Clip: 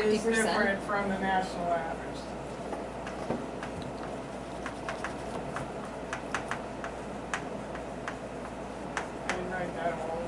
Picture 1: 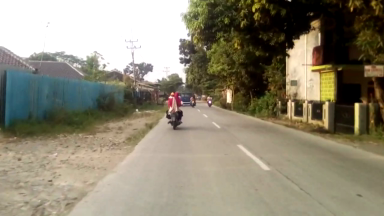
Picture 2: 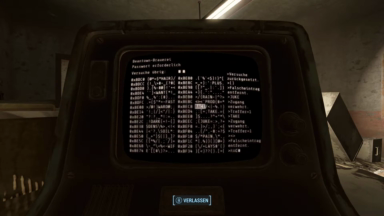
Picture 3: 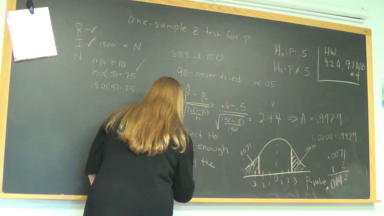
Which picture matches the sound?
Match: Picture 3